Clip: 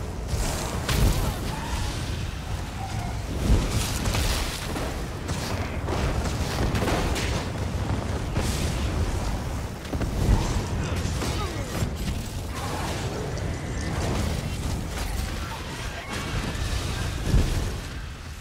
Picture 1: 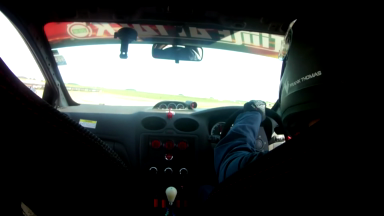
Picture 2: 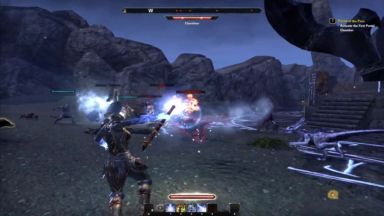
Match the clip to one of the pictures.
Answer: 2